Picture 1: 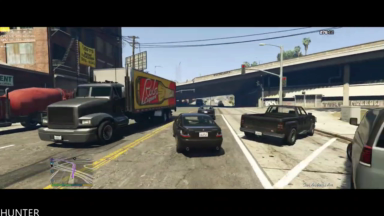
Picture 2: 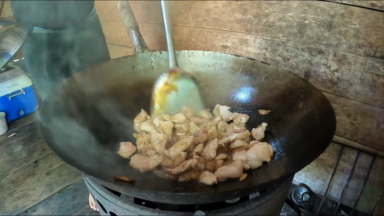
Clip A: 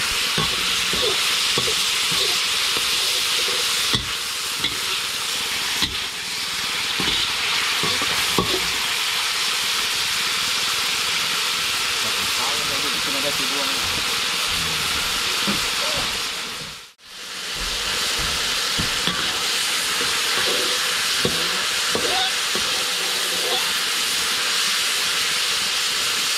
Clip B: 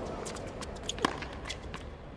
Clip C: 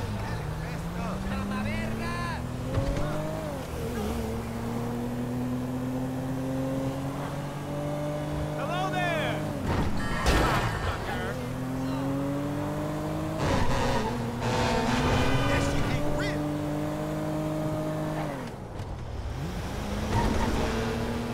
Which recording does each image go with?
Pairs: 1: C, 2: A